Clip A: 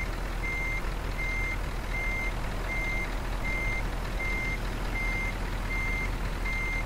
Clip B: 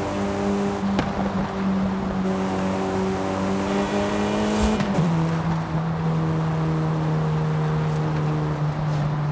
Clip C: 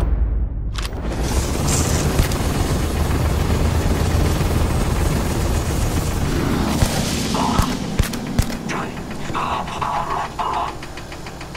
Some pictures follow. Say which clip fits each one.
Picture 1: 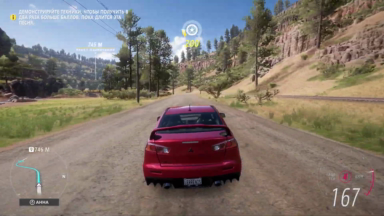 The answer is B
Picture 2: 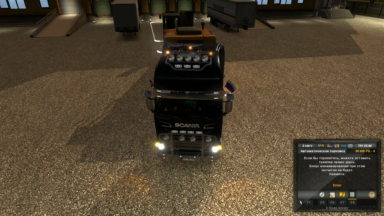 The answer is A